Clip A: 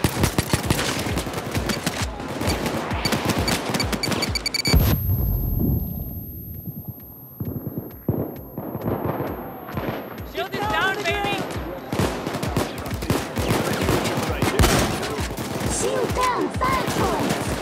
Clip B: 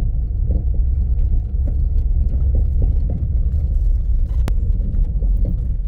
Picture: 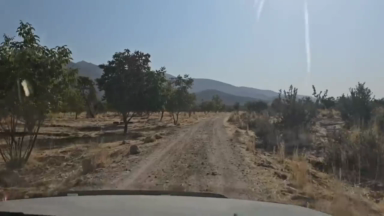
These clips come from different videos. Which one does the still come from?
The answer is B